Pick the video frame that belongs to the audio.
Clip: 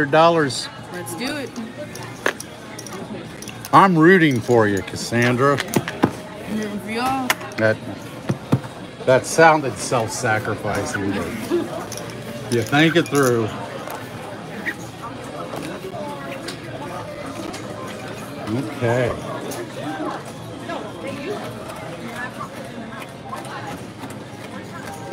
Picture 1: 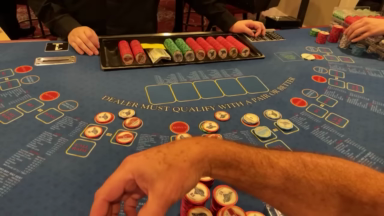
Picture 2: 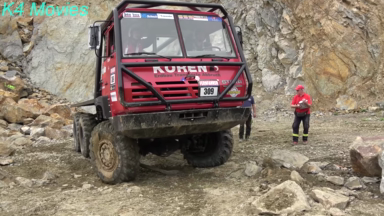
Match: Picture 1